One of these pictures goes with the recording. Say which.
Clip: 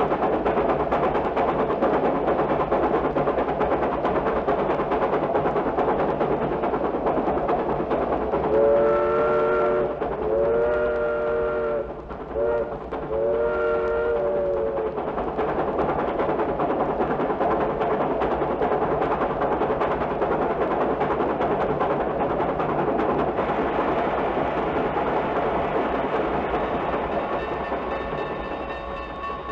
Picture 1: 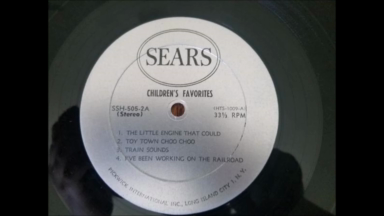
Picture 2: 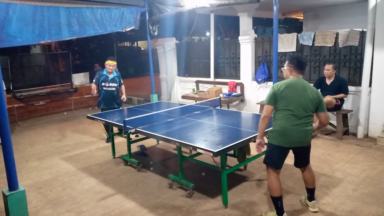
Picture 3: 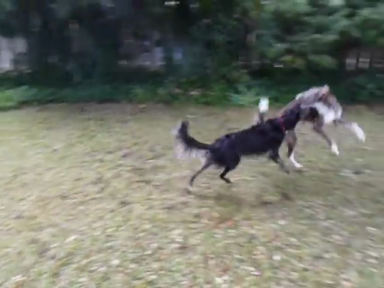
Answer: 1